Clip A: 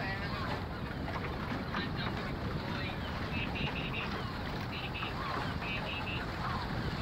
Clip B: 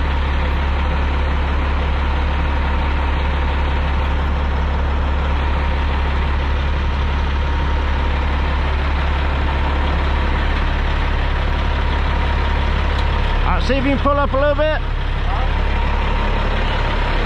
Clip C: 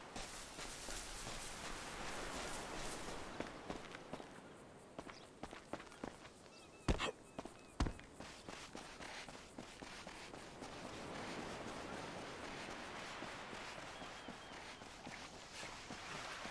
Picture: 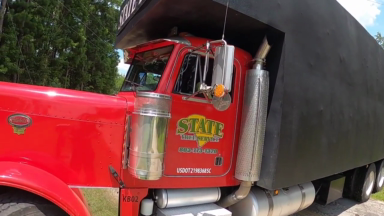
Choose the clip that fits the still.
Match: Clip B